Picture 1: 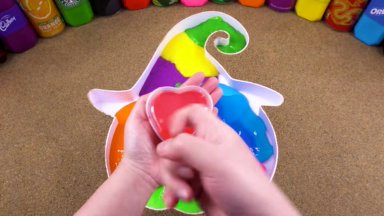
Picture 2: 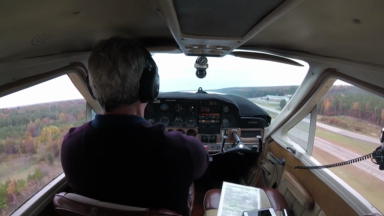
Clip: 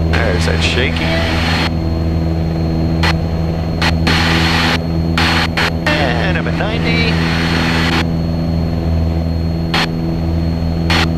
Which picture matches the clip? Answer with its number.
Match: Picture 2